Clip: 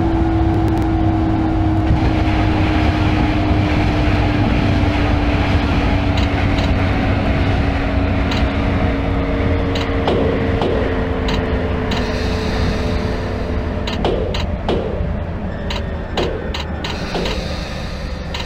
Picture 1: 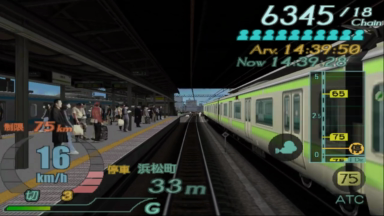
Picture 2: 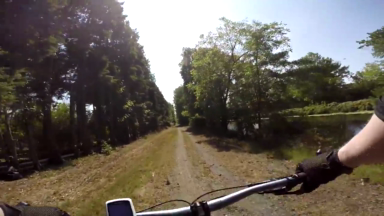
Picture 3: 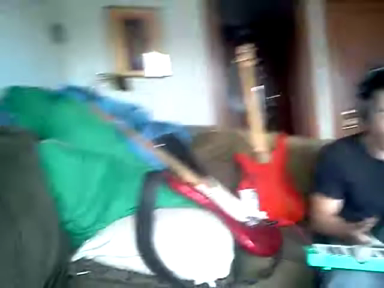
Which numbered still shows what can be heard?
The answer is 1